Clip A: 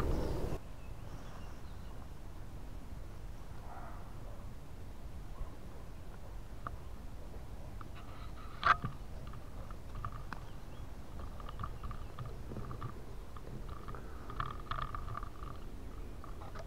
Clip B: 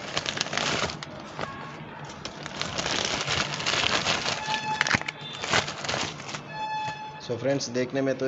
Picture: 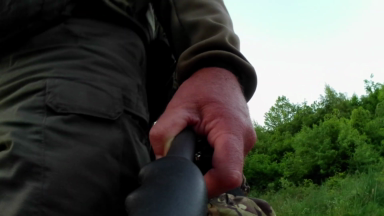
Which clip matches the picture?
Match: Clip A